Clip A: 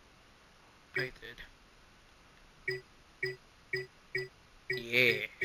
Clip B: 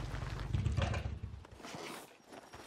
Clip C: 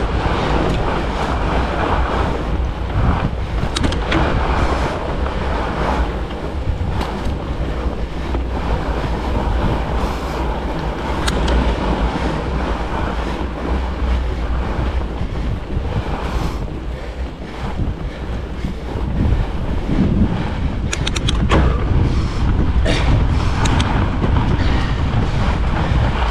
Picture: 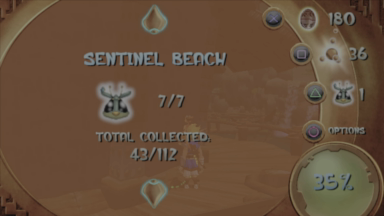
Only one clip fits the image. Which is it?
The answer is A